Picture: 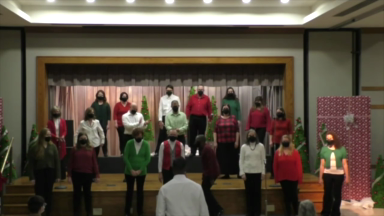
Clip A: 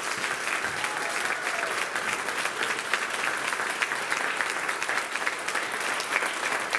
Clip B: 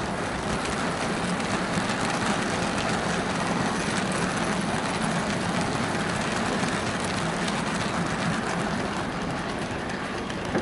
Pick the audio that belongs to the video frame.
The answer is A